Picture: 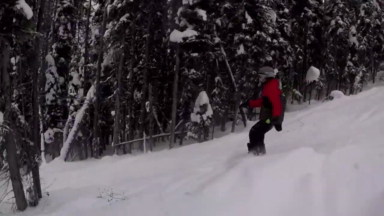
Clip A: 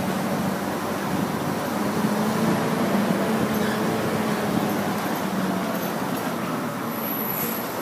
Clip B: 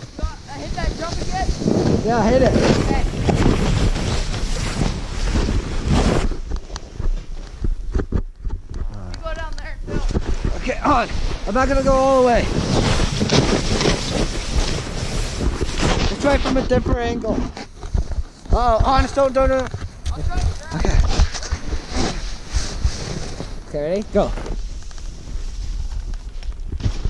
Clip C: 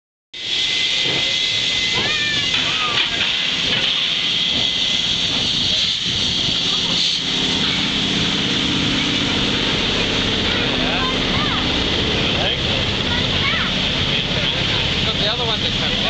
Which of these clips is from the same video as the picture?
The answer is B